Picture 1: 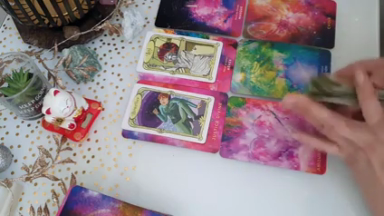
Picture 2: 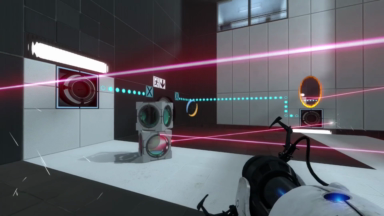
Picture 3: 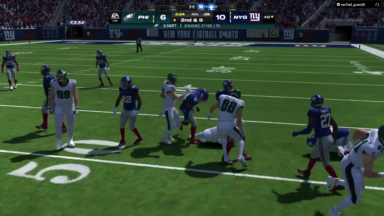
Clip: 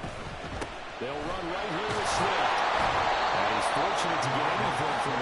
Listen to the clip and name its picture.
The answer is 3